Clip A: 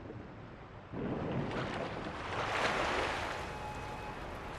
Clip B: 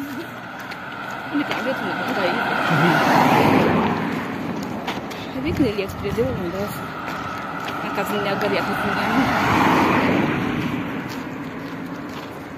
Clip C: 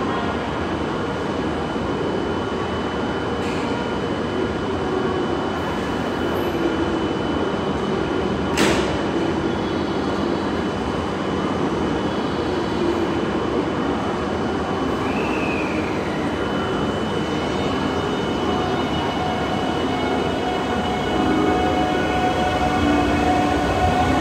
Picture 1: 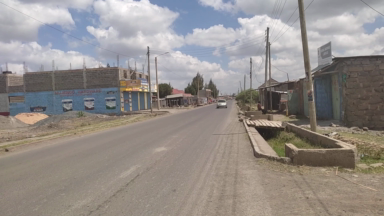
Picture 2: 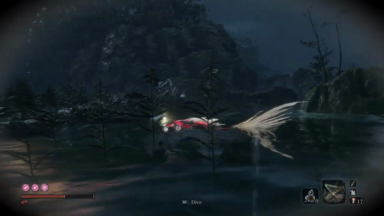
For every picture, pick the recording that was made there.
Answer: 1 B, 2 A